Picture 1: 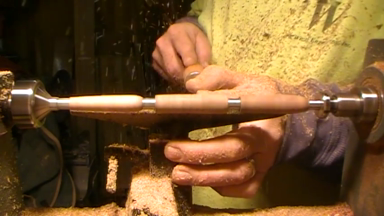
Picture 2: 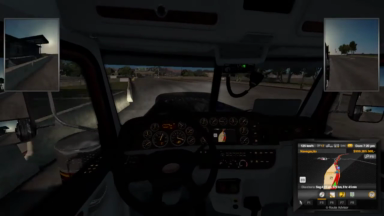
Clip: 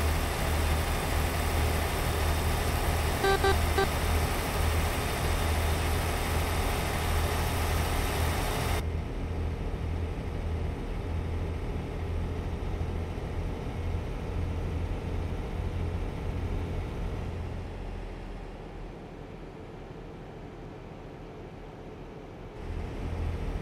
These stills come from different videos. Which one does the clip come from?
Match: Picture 2